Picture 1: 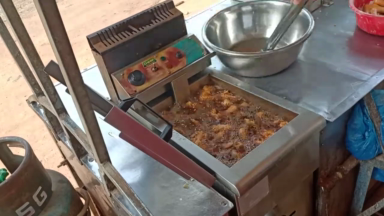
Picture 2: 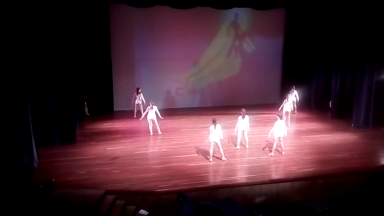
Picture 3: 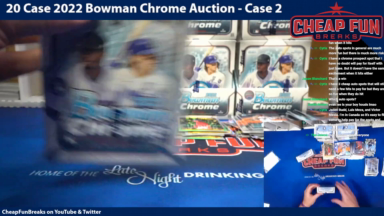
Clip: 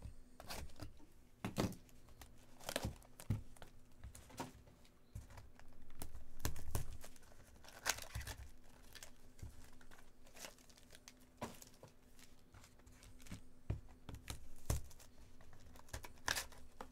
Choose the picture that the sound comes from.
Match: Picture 3